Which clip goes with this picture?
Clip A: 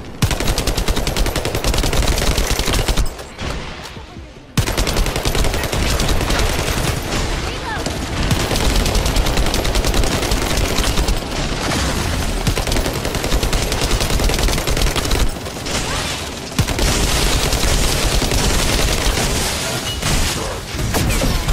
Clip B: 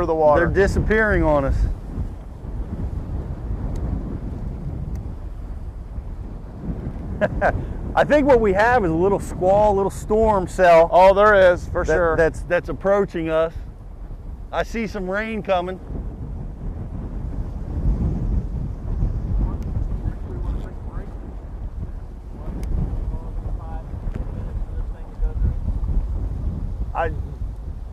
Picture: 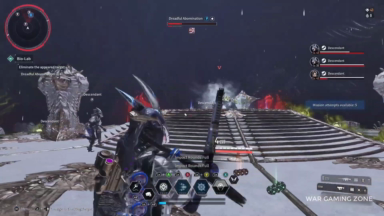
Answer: A